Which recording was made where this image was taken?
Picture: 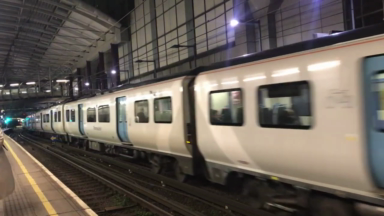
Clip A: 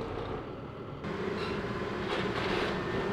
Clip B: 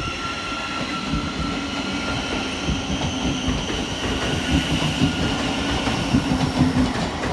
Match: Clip B